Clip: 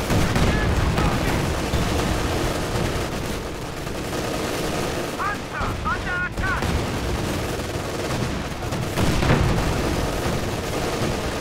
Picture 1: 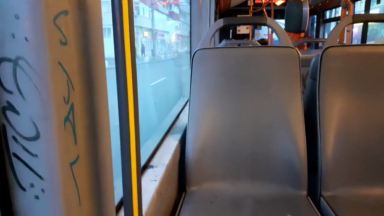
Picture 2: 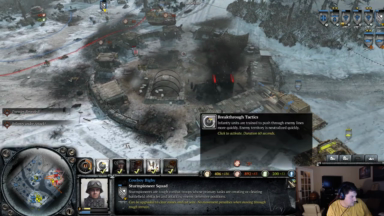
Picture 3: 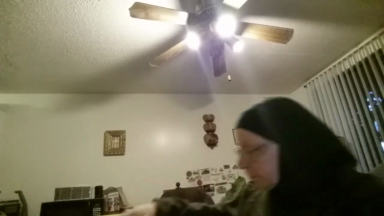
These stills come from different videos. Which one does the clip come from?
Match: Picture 2